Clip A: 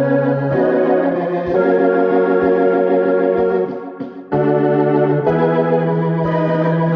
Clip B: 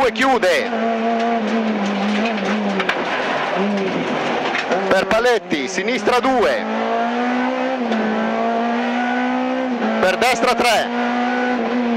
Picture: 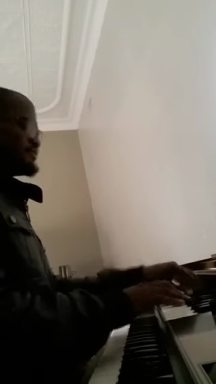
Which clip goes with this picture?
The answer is A